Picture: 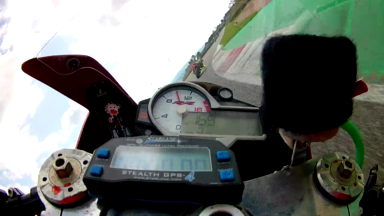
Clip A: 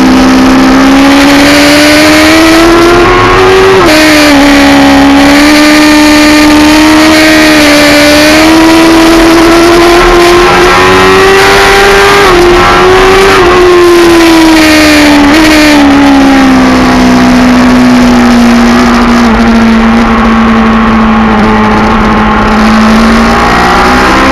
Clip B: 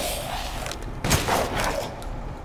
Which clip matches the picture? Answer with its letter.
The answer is A